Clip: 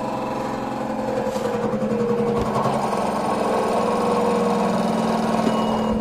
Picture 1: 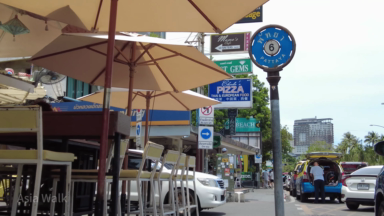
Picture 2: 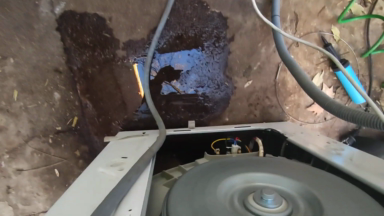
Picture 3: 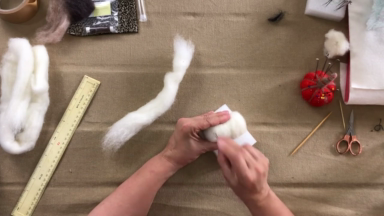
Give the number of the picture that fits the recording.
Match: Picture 2